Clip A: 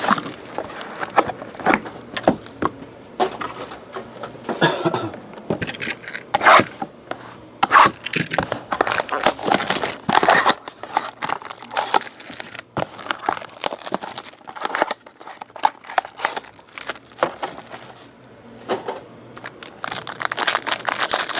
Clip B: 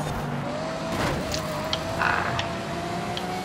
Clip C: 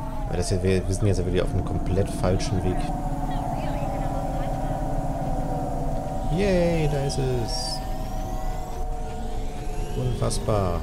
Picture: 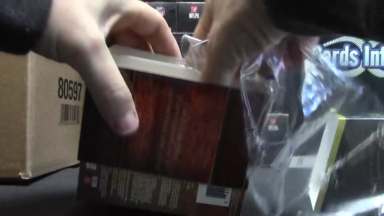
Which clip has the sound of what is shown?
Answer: A